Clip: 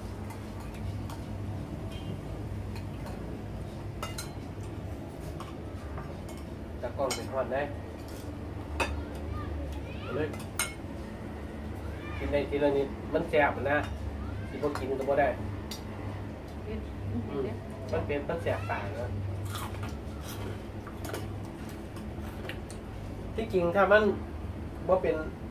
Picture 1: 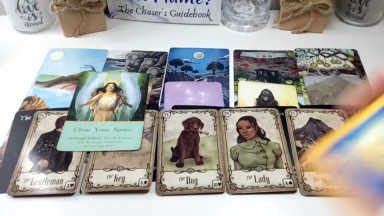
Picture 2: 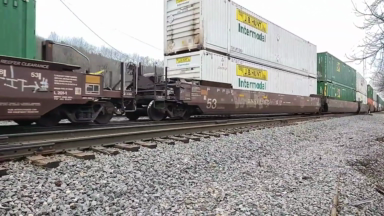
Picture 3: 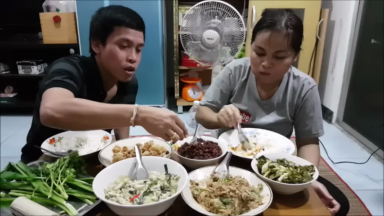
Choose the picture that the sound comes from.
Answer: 3